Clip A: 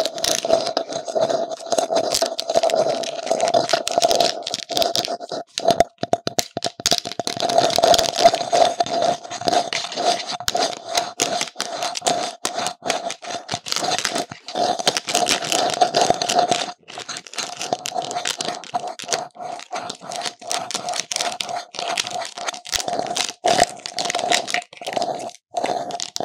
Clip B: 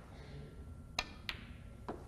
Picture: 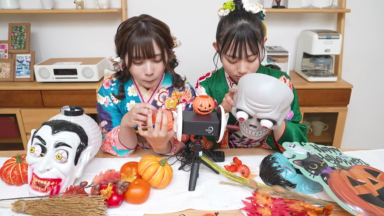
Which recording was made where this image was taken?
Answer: A